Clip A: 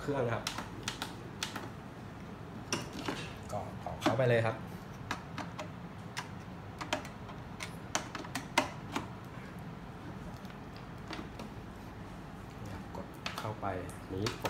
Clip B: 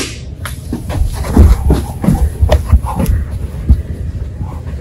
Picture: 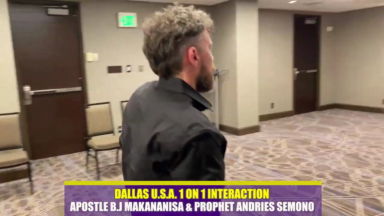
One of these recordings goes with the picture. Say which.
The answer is B